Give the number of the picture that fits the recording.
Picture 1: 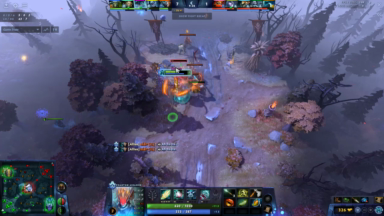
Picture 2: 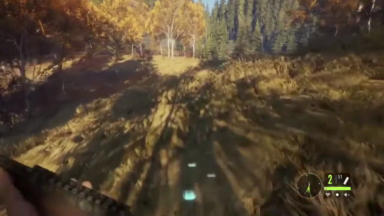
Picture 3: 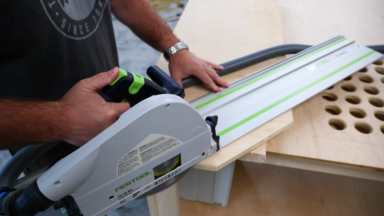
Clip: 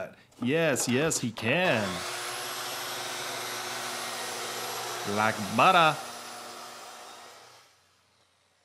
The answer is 3